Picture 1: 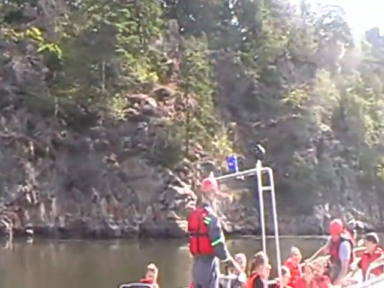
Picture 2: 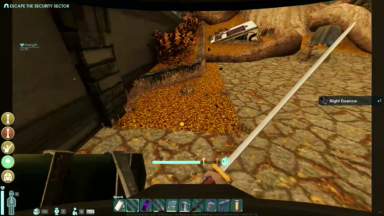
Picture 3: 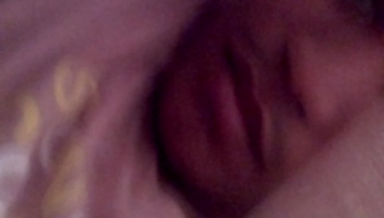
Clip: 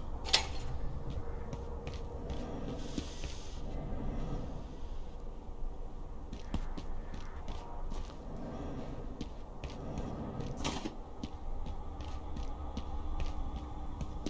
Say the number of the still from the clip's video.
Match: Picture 2